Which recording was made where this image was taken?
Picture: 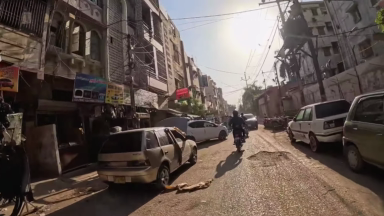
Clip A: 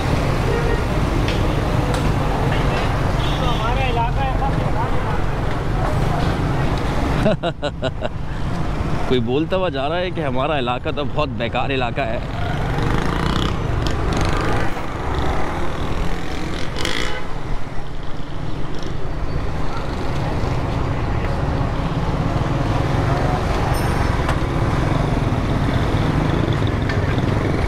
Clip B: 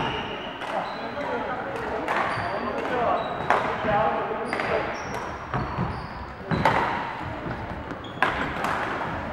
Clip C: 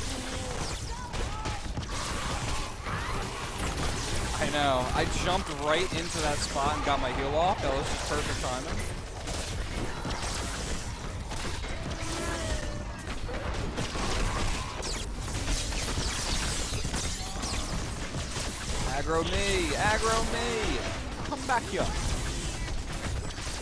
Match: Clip A